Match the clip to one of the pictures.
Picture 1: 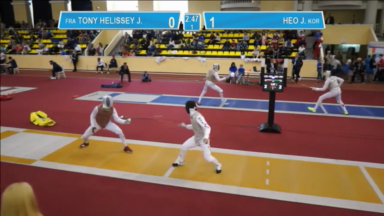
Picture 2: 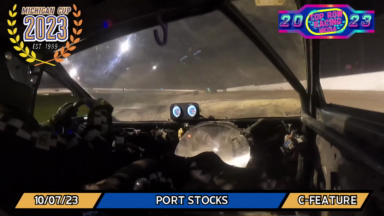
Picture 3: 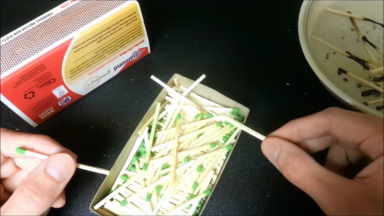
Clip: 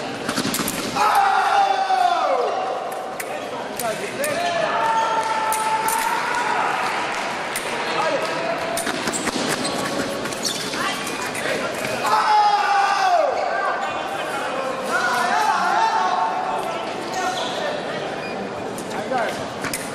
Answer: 1